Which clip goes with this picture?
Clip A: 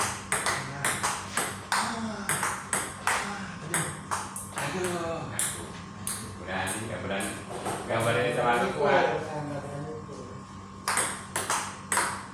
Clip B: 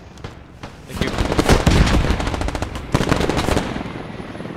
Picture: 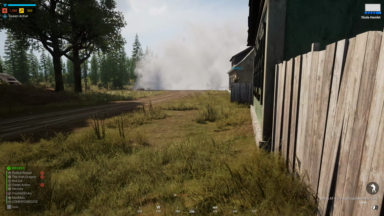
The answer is B